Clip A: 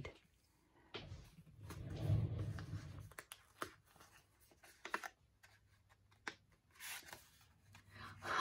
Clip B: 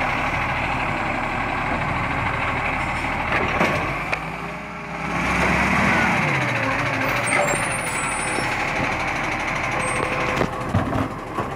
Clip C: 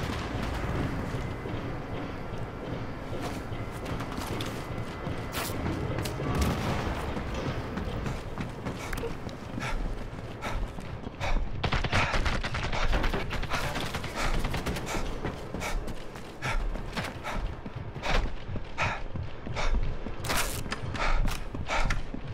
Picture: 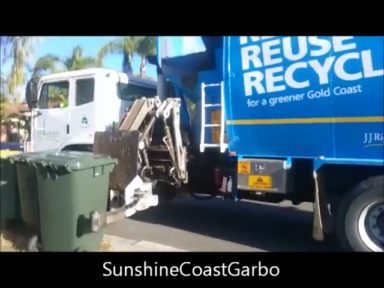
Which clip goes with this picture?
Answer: B